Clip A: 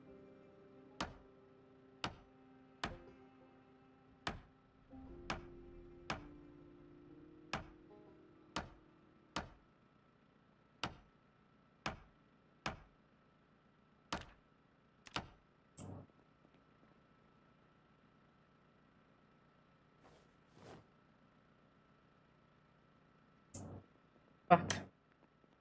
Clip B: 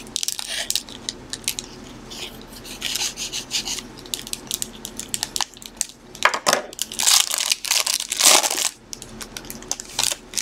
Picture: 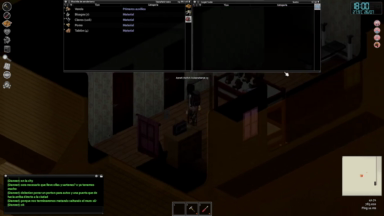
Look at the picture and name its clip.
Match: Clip A